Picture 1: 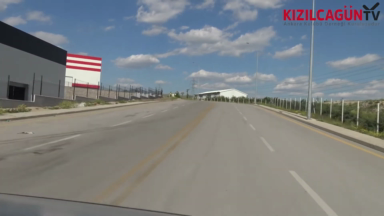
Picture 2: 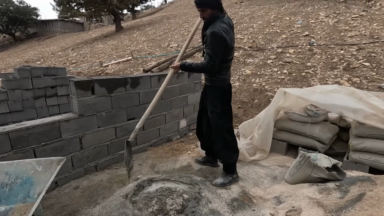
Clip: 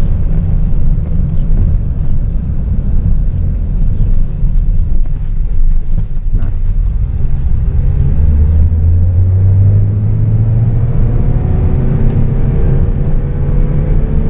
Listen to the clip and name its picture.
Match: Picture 1